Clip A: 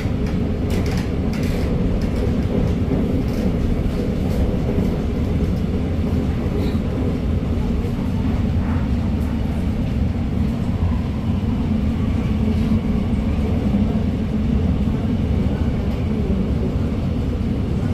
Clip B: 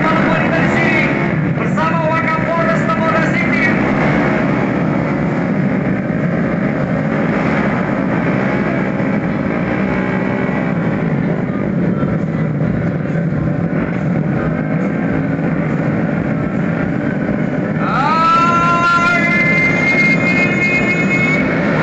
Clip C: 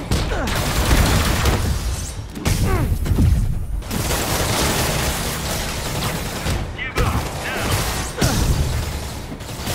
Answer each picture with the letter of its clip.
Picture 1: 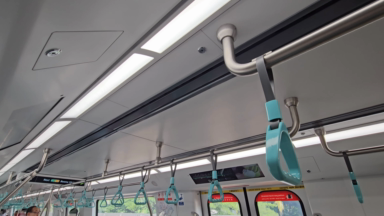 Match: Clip A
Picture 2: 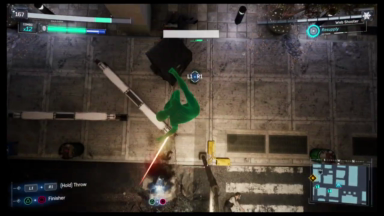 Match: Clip C